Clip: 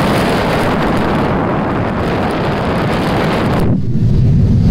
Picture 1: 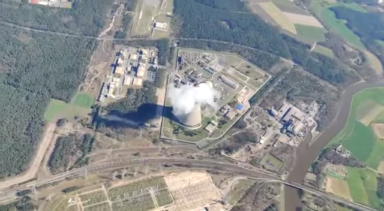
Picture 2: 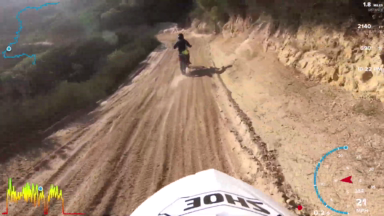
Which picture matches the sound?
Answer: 1